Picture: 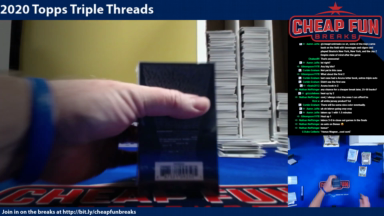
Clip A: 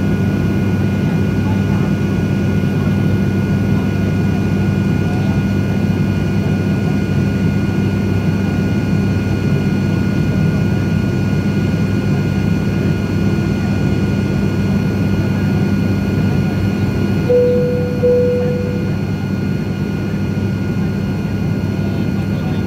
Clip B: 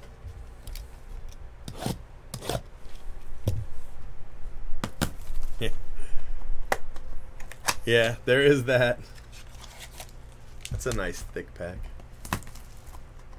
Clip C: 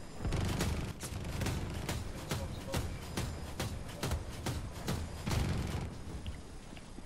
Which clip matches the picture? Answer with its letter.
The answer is B